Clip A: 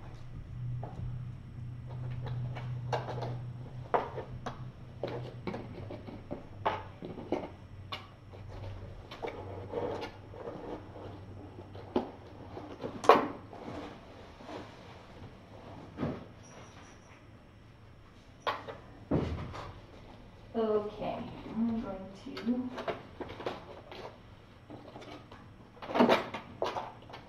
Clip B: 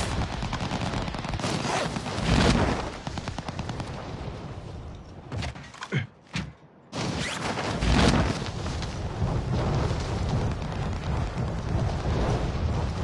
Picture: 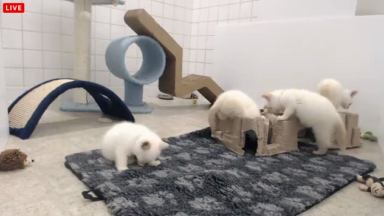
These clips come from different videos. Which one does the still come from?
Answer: A